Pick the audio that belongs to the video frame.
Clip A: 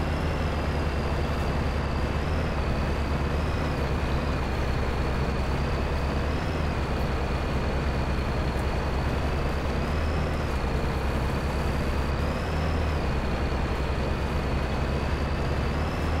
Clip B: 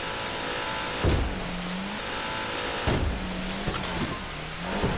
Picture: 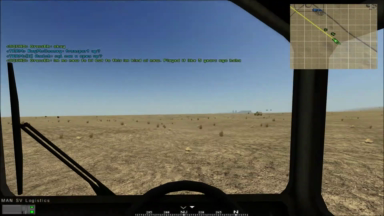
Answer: A